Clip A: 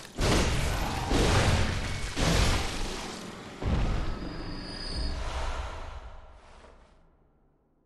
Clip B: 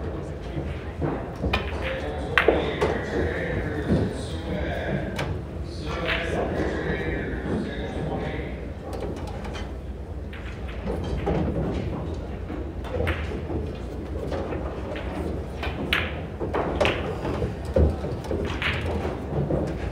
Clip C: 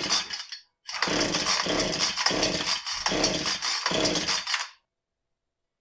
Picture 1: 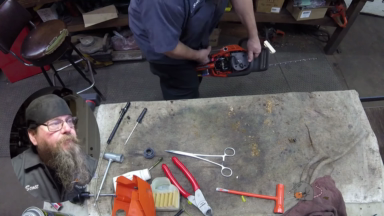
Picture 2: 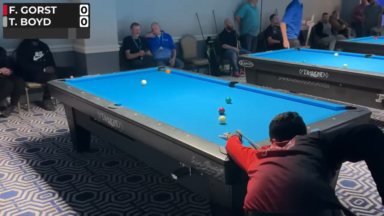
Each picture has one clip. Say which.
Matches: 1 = C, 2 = B